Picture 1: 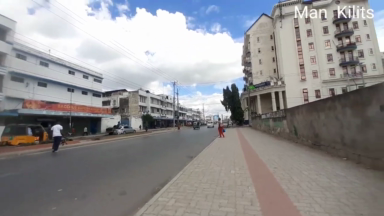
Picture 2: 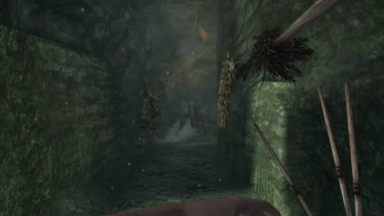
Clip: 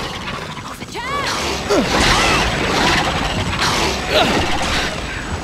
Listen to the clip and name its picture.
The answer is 2